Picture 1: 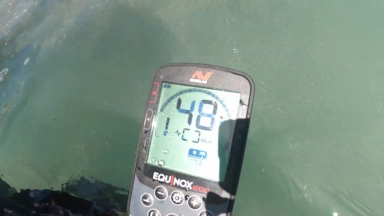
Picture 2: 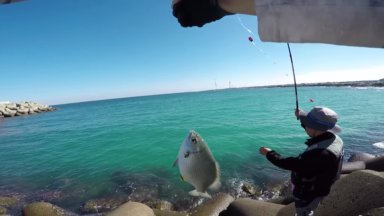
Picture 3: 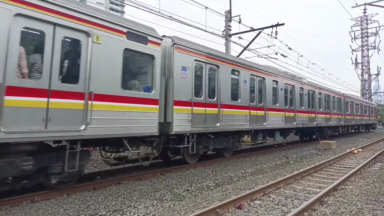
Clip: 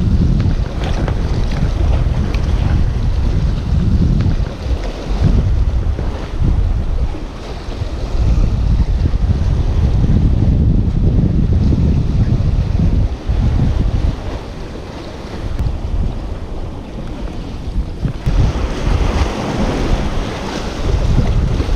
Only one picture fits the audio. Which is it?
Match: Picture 2